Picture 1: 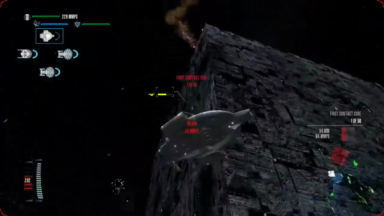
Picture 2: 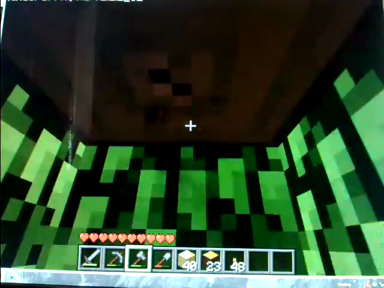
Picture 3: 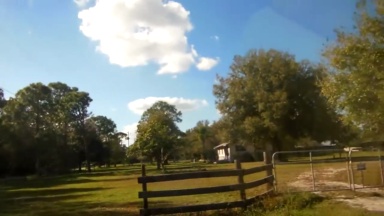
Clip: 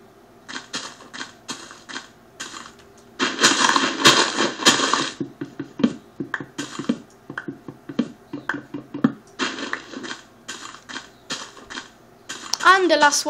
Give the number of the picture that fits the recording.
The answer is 2